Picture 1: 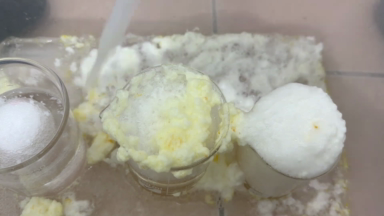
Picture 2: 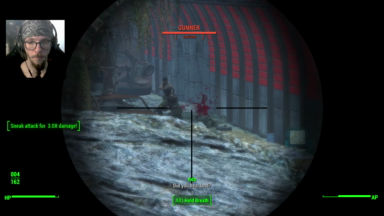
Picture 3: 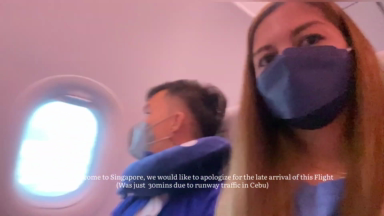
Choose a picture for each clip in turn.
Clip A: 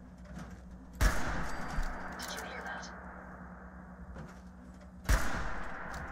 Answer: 2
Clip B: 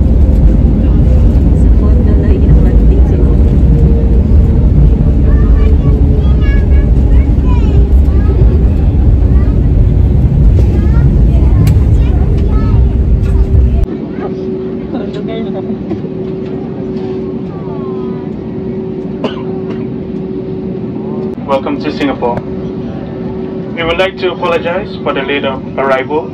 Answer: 3